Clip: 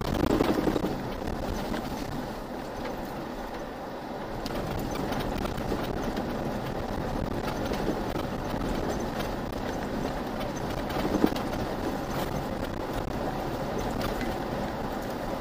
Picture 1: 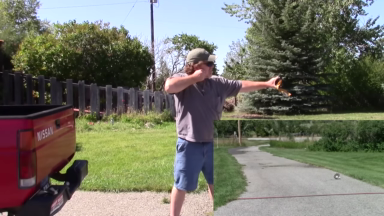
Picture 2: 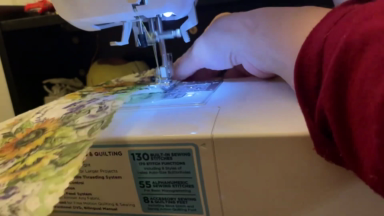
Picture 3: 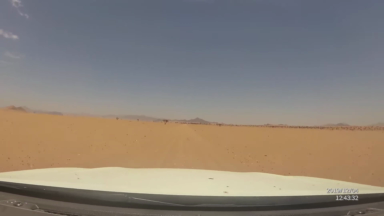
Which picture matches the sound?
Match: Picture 3